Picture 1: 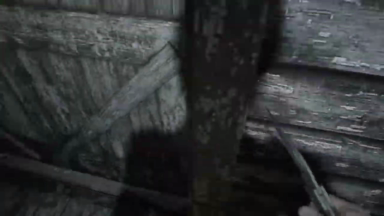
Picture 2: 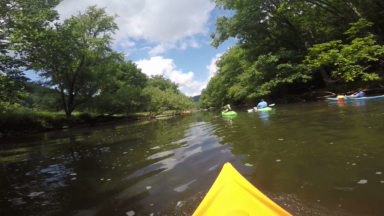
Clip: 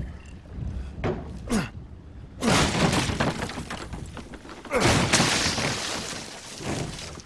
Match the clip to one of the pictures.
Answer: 1